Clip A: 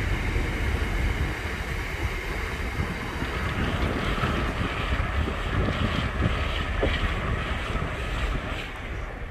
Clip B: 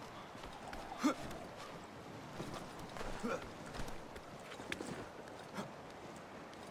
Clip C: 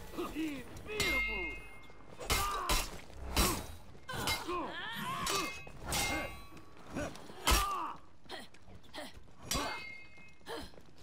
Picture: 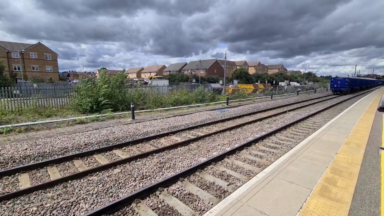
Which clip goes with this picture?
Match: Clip A